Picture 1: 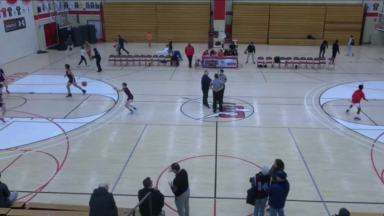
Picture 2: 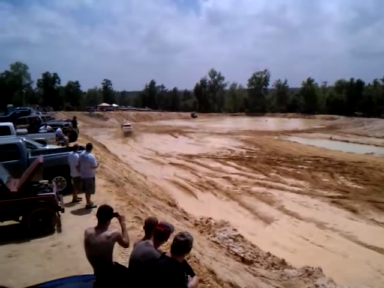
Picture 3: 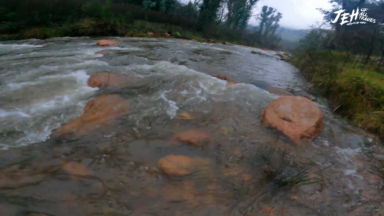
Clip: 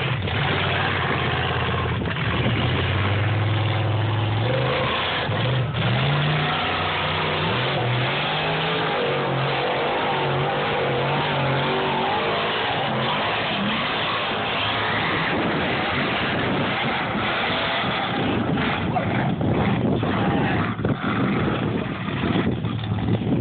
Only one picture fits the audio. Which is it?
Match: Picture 2